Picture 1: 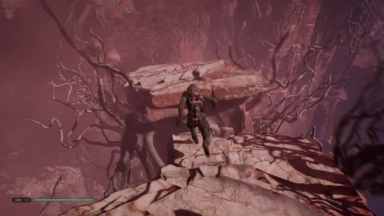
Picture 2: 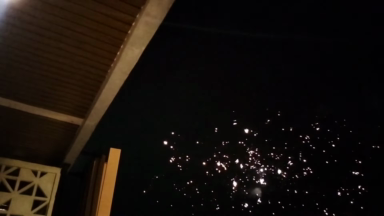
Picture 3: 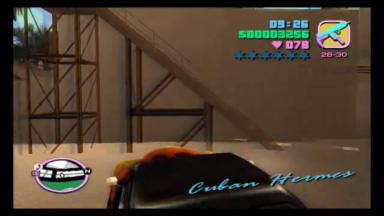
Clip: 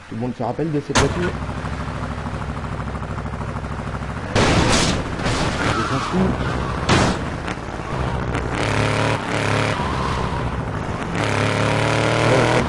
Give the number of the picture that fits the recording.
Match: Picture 3